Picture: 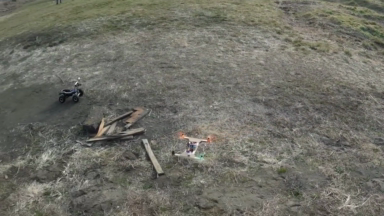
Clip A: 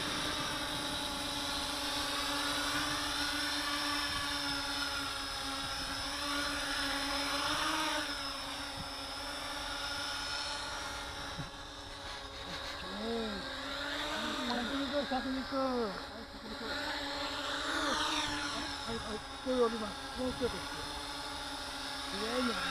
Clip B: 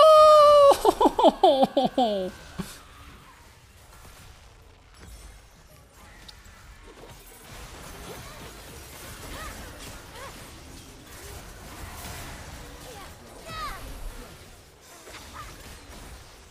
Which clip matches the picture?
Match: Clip A